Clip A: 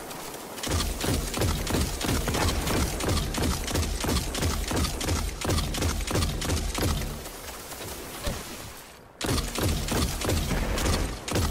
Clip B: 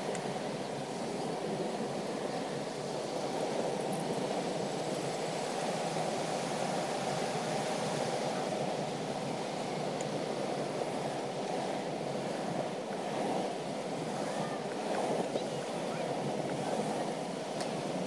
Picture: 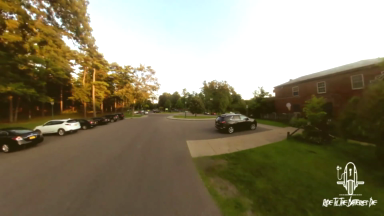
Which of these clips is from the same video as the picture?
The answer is B